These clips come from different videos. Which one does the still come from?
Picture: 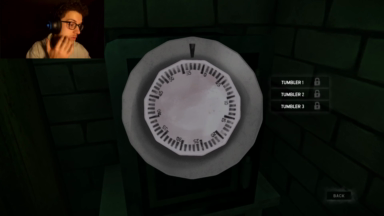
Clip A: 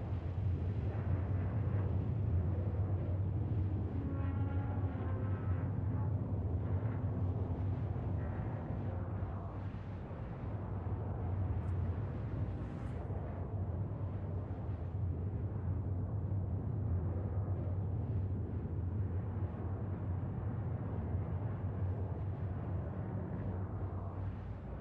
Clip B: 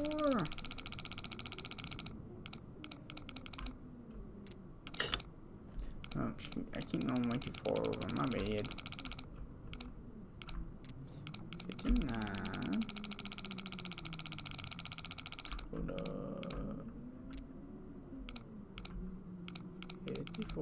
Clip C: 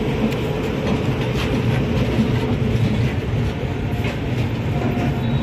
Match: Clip B